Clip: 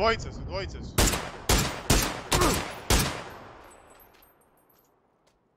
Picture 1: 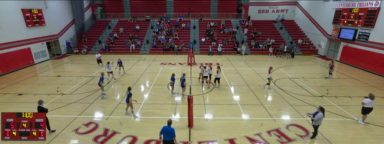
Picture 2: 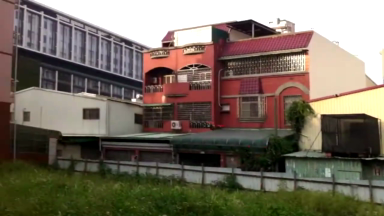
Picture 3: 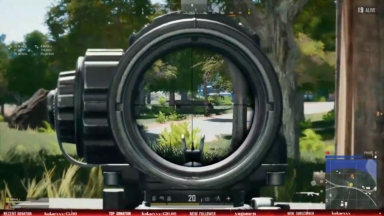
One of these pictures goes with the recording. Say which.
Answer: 3